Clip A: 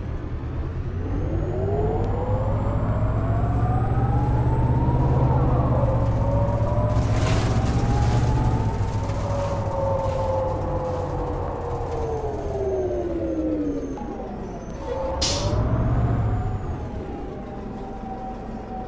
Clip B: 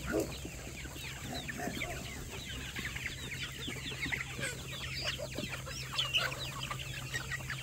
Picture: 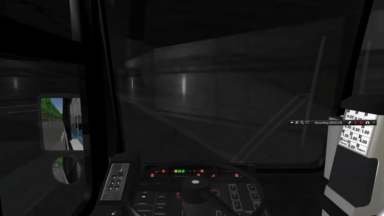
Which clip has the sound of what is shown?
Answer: A